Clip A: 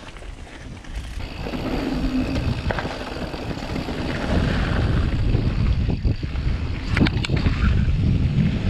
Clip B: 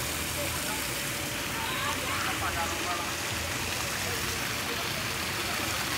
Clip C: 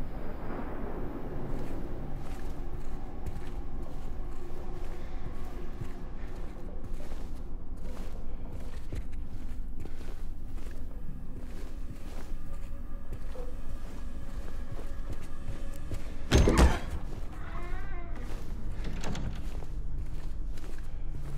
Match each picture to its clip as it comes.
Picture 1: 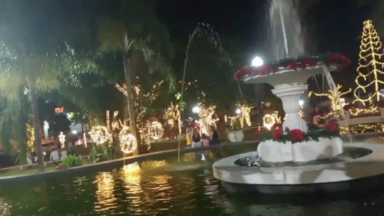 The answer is B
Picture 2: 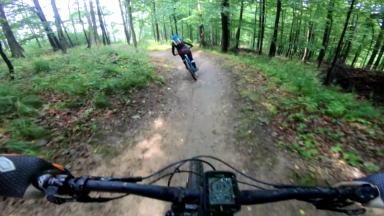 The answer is A